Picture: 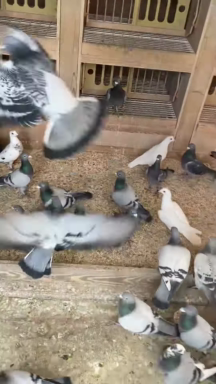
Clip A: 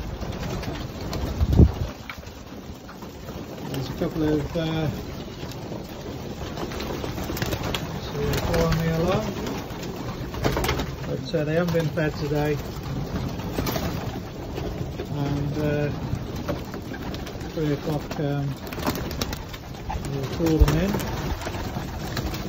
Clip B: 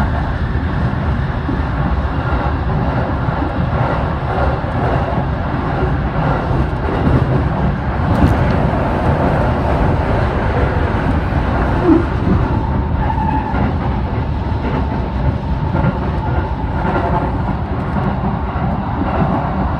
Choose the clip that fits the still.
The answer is A